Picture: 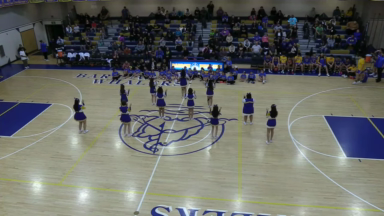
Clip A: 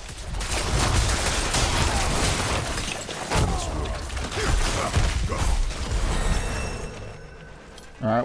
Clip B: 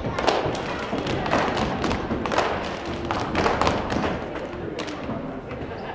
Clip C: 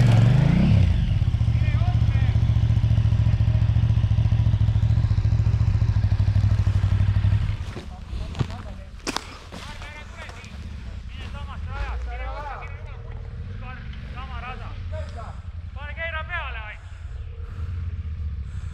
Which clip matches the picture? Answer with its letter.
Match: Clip B